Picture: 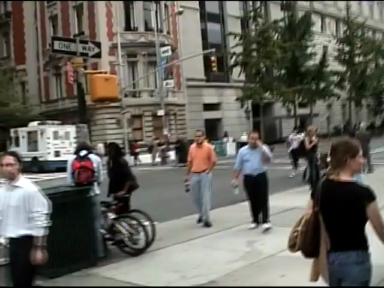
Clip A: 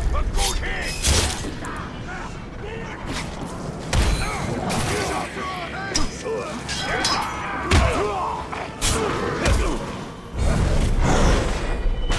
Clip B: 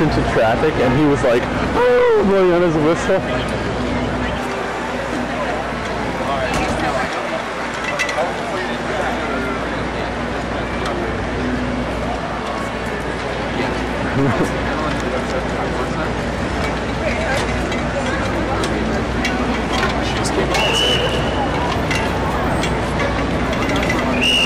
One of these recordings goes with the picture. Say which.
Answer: B